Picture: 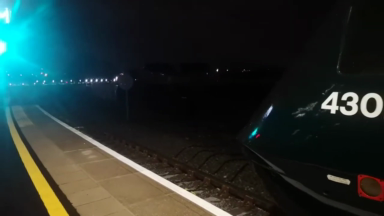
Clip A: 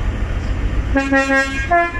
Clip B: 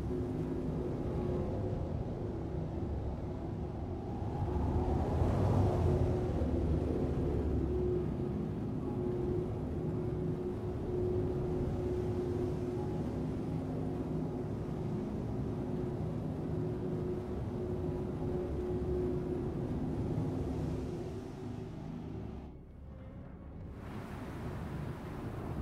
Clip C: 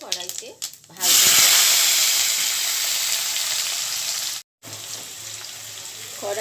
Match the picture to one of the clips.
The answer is A